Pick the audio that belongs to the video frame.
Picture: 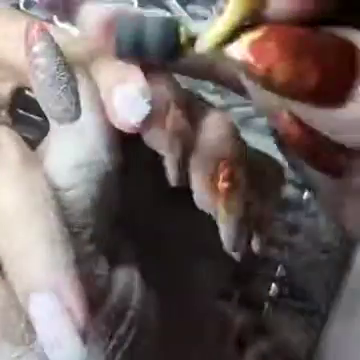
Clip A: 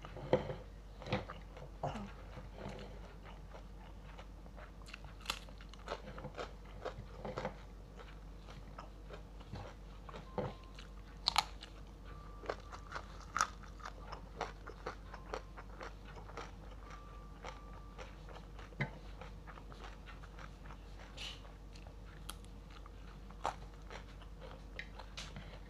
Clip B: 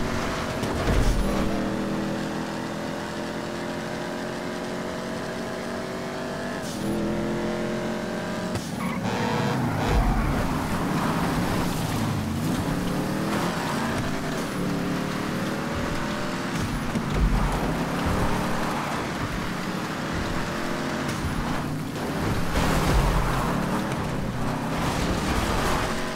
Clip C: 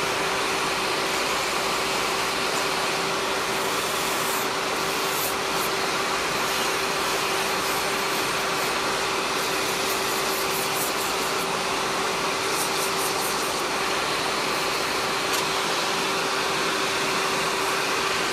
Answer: C